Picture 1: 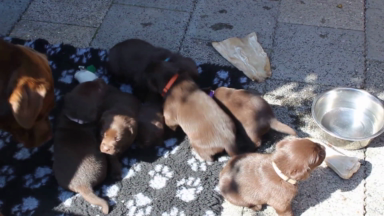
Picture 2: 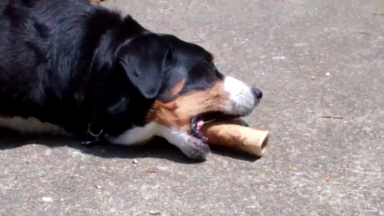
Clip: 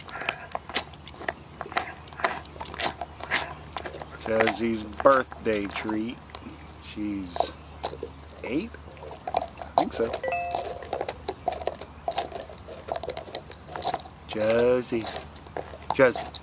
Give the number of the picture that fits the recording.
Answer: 2